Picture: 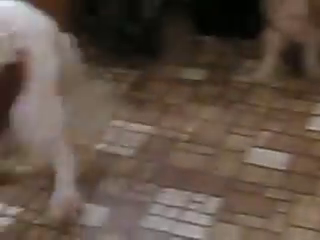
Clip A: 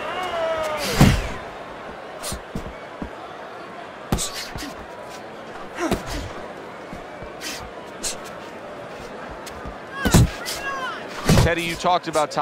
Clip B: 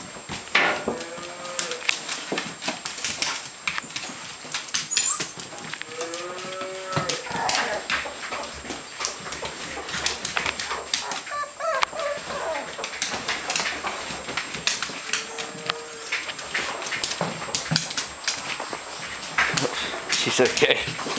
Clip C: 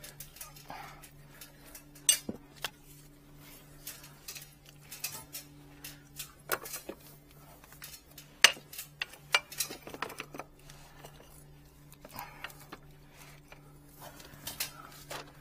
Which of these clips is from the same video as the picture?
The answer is B